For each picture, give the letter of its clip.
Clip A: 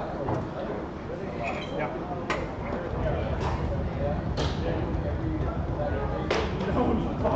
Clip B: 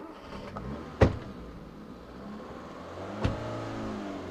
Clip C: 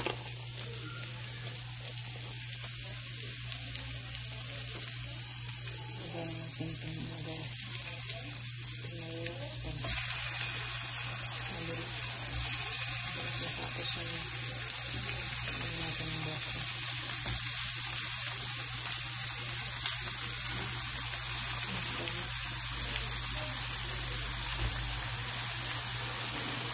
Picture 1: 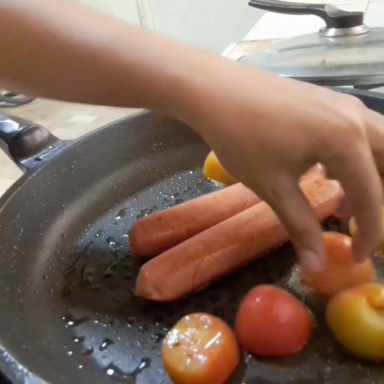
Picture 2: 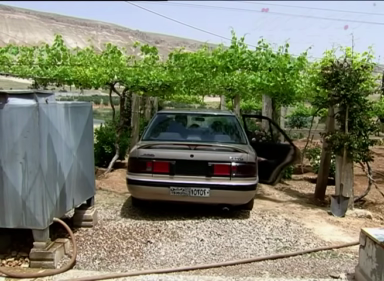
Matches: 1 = C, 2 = B